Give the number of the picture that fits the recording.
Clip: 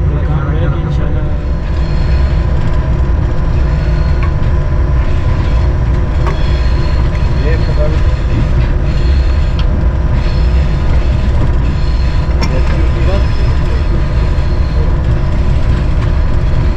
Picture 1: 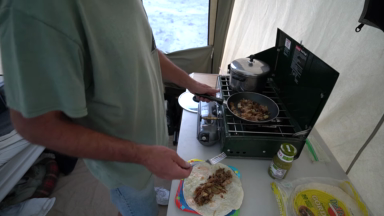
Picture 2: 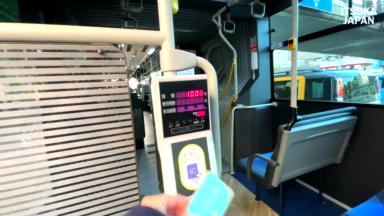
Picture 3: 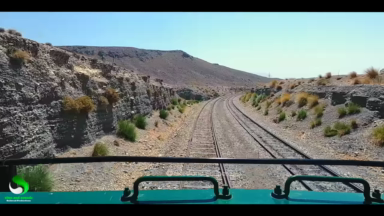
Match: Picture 3